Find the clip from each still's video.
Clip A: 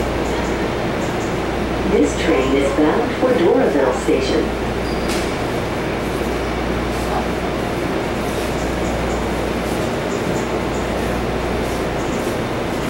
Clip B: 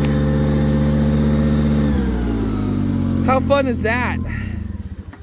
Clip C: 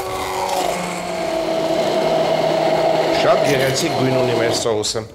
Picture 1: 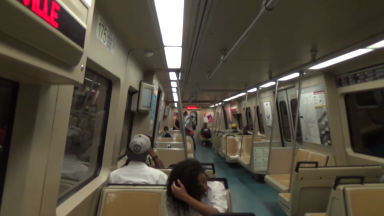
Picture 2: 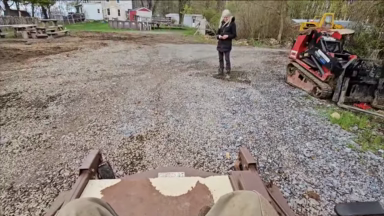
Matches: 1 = A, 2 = B